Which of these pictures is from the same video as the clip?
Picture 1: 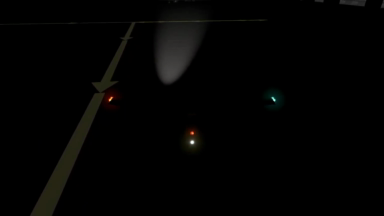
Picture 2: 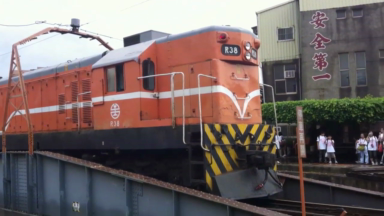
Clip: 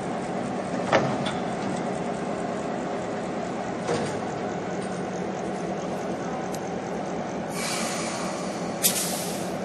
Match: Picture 2